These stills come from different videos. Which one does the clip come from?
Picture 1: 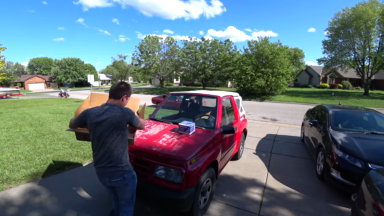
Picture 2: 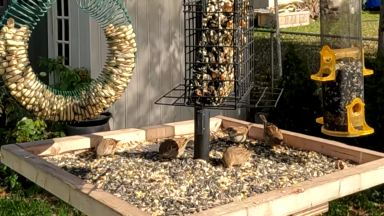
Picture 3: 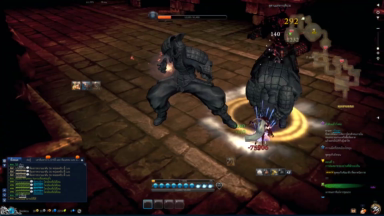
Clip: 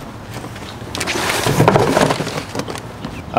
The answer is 1